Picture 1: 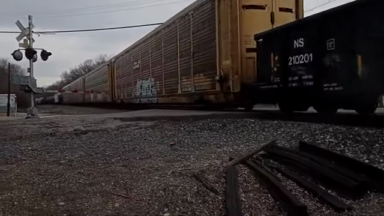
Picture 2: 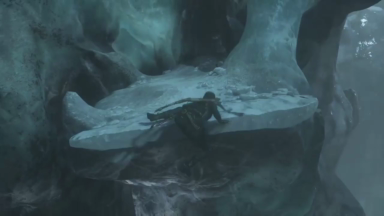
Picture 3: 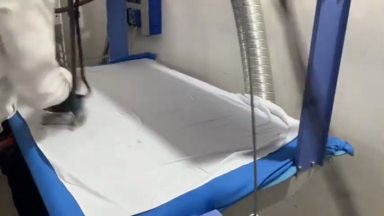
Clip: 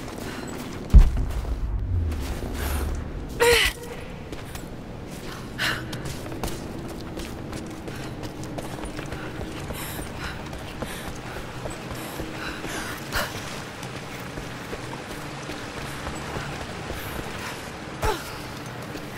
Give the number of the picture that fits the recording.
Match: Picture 2